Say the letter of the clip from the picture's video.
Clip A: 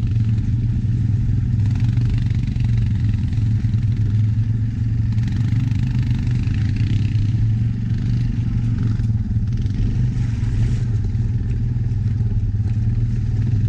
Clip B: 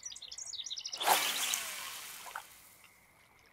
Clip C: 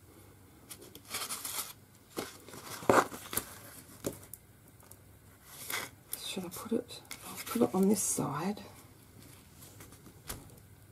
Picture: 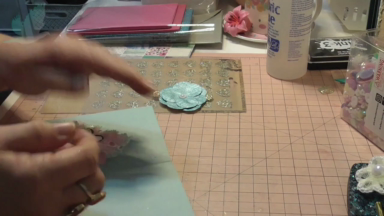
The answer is C